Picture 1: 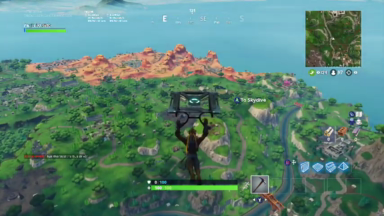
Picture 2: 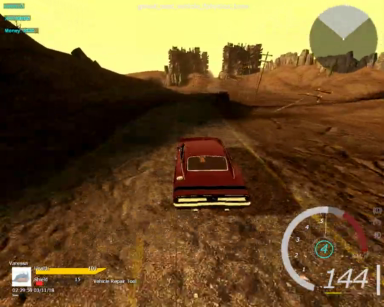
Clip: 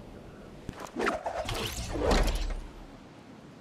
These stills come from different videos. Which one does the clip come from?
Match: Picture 1